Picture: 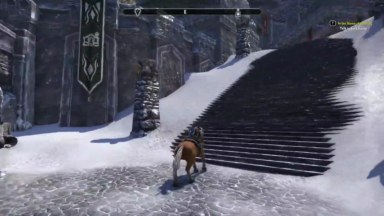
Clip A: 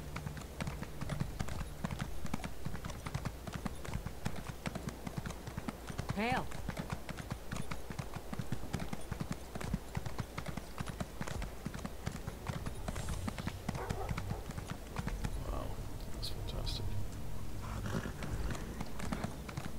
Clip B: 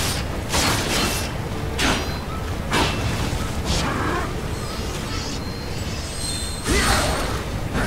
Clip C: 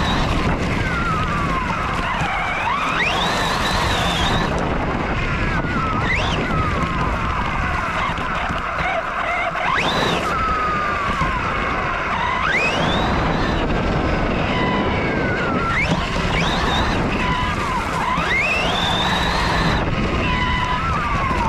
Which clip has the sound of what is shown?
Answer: A